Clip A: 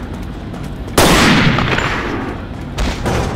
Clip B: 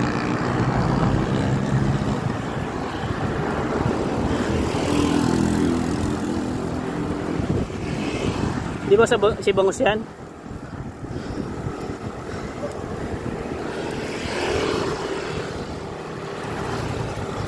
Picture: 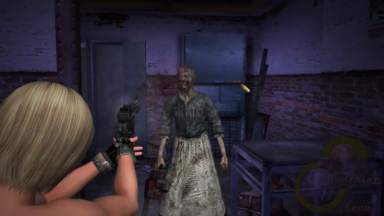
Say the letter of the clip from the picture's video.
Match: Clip A